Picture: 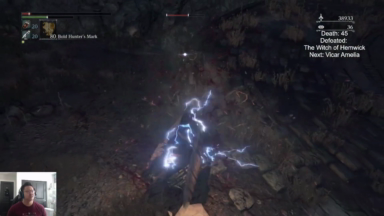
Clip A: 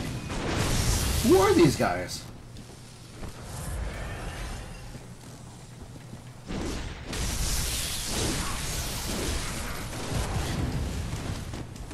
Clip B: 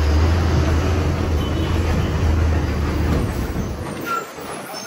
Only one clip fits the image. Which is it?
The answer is A